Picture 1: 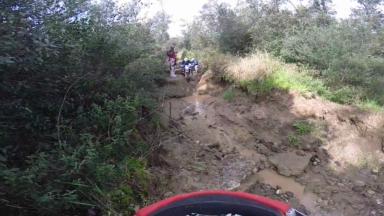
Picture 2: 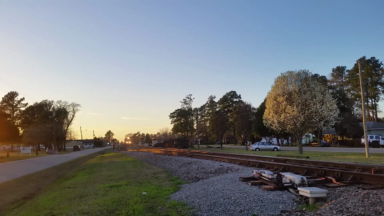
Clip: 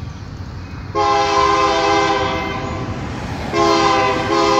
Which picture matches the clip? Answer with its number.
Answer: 2